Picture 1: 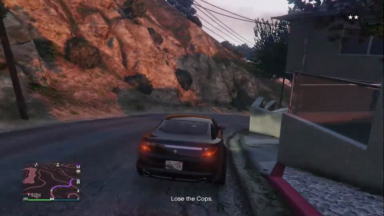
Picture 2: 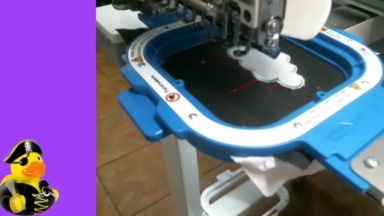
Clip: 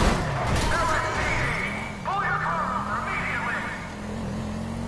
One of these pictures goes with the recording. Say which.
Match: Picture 1